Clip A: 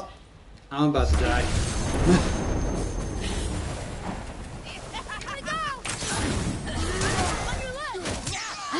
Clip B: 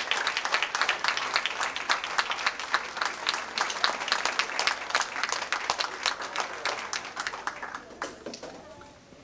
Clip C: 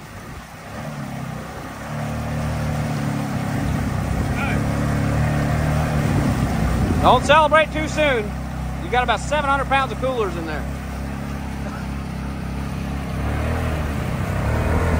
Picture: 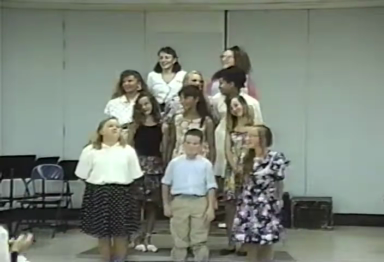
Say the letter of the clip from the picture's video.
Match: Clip B